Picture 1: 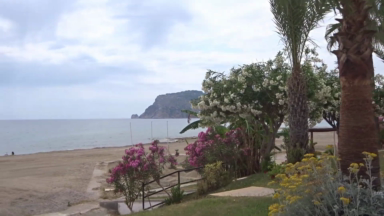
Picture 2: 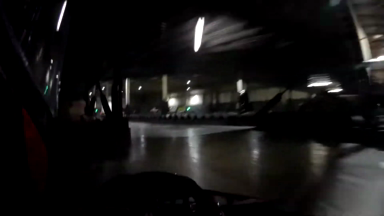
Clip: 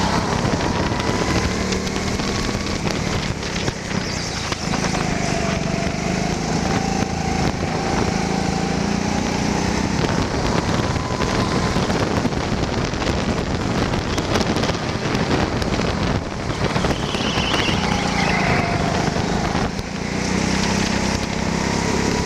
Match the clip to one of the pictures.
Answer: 2